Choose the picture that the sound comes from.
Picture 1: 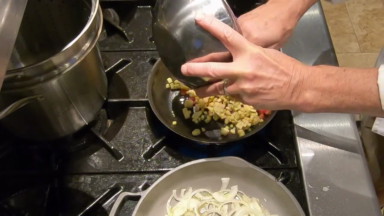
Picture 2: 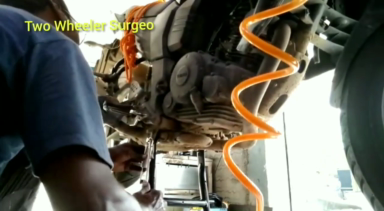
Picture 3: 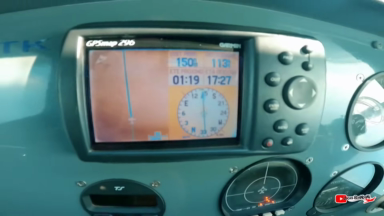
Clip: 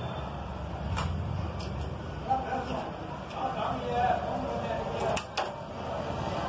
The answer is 2